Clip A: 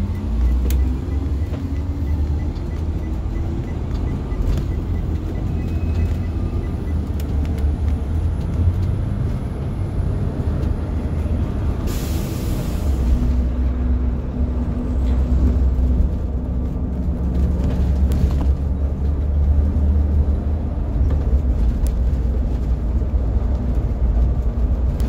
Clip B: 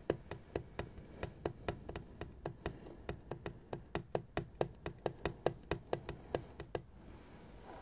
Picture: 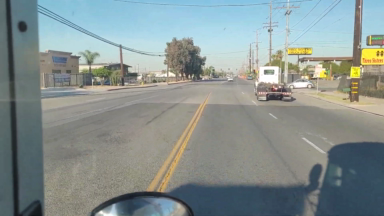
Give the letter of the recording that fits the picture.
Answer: A